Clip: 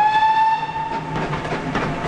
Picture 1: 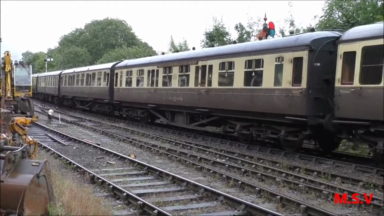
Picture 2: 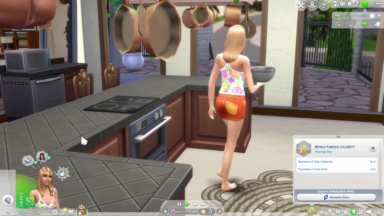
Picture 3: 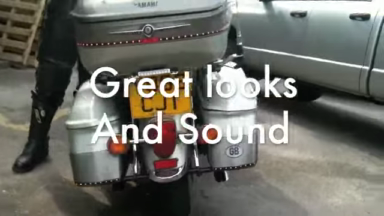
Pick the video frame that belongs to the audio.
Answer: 1